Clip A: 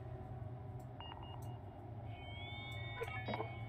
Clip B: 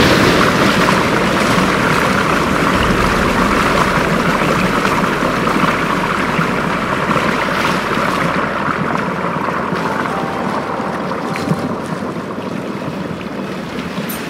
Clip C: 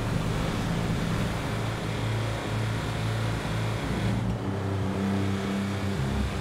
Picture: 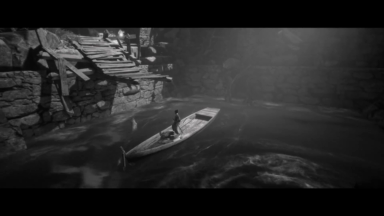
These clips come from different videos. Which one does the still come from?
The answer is B